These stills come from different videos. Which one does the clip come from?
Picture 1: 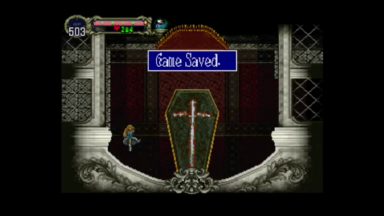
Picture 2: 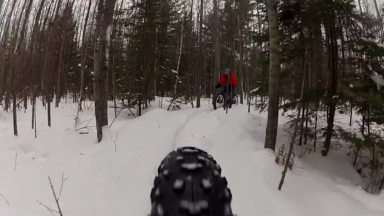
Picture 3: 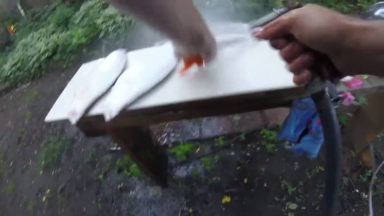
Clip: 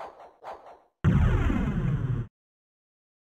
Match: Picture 1